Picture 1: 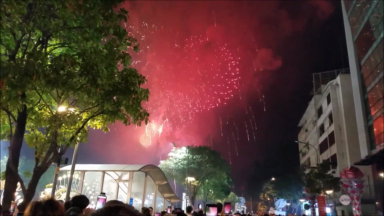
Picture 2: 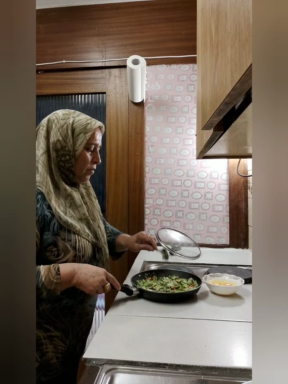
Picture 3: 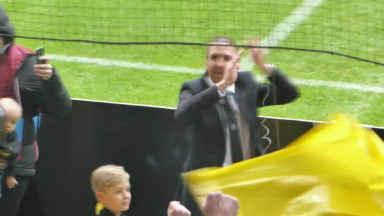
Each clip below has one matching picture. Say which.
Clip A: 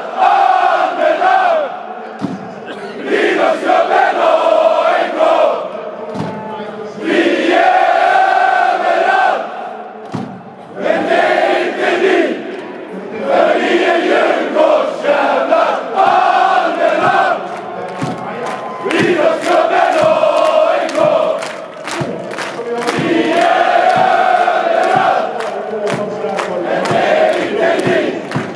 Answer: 3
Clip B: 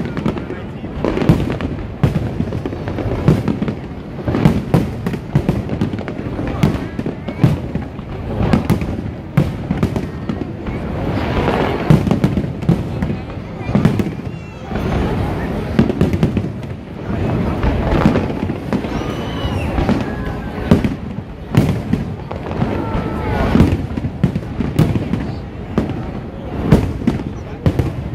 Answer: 1